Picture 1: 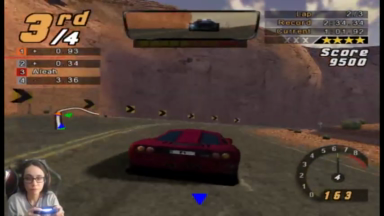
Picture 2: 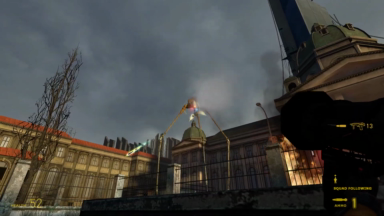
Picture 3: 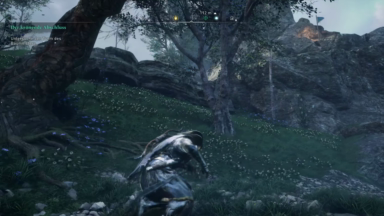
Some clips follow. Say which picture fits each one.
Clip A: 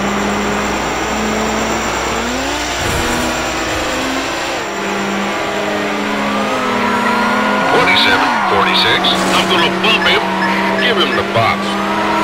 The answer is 1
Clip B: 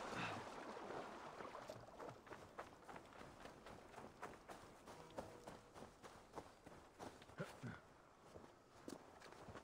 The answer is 3